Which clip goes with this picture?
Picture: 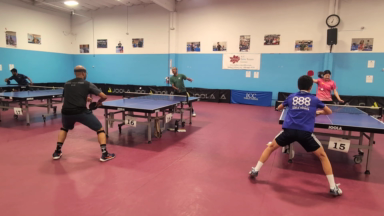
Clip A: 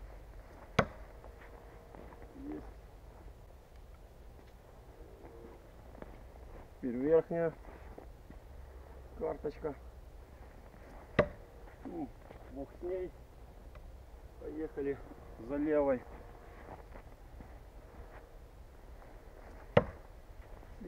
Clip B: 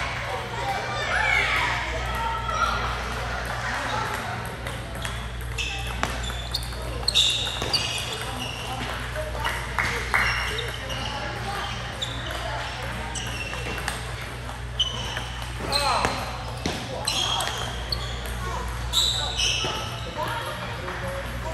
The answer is B